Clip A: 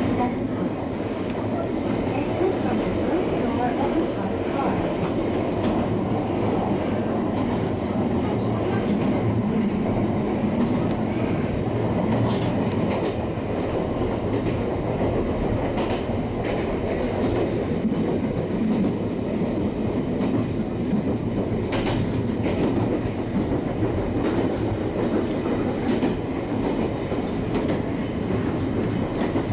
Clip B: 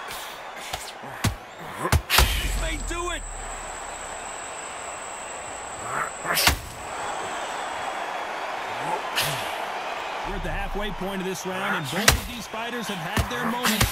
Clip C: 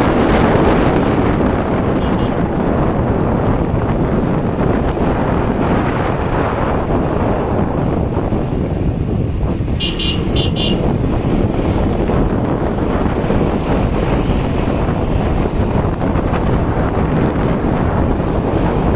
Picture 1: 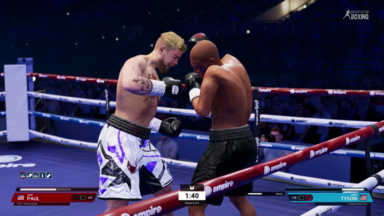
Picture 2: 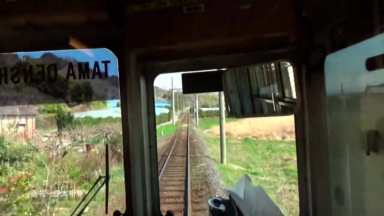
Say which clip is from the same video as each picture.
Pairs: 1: B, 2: A